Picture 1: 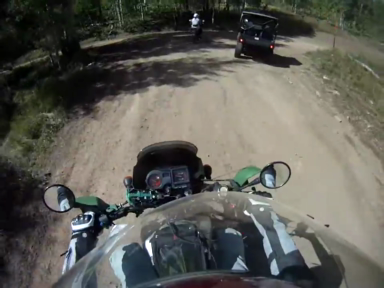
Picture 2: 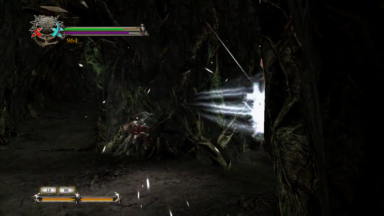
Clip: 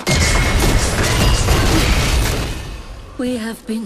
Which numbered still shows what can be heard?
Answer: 2